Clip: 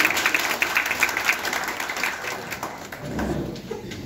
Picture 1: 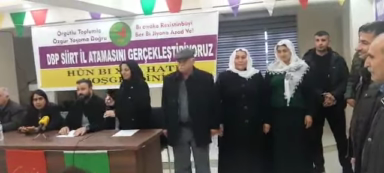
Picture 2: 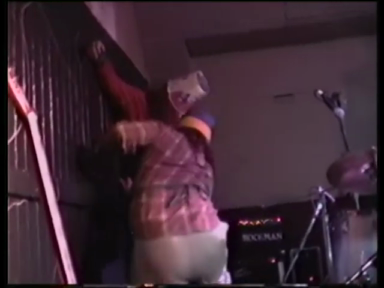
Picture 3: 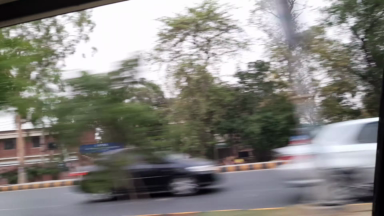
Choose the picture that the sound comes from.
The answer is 1